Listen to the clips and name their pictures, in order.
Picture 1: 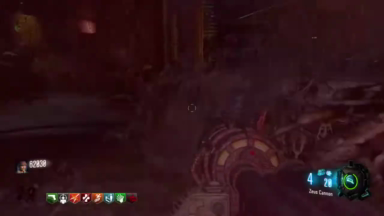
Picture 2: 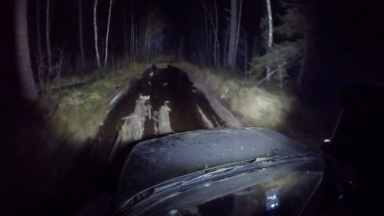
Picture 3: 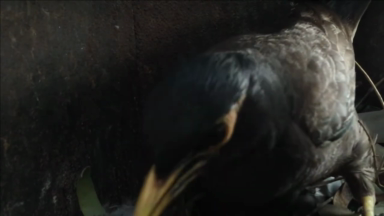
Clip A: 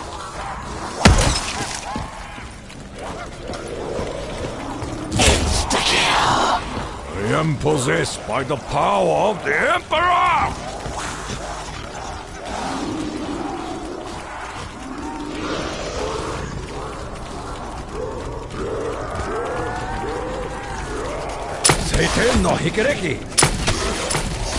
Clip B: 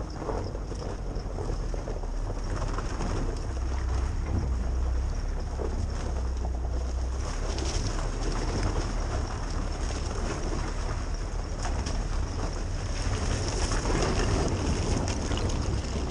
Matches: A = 1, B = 2